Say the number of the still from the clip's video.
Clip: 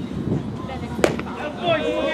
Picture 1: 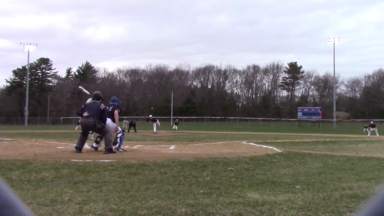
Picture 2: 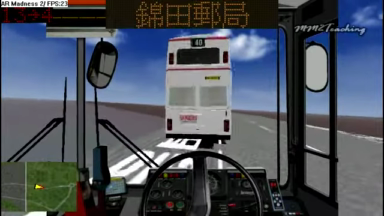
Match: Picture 1